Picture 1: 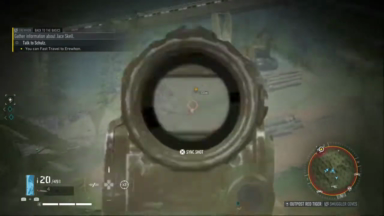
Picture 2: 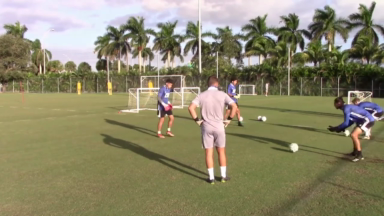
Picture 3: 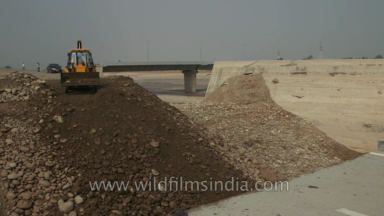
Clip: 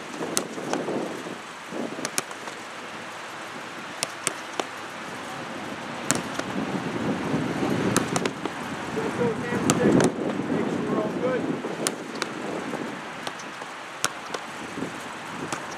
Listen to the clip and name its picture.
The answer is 2